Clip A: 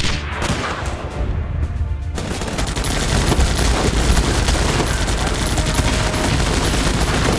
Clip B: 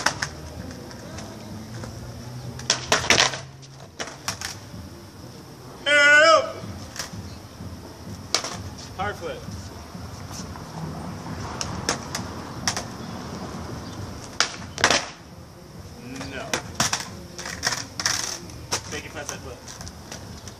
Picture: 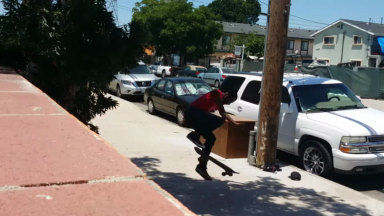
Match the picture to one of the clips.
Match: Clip B